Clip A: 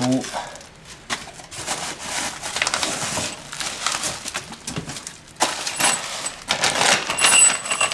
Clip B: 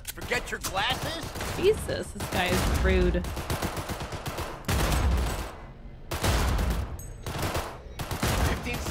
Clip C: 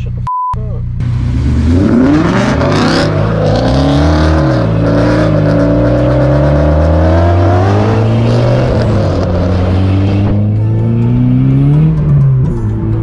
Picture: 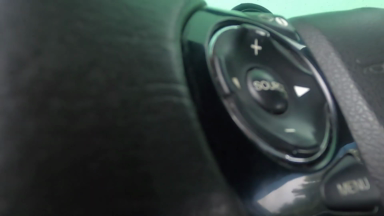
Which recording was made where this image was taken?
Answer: C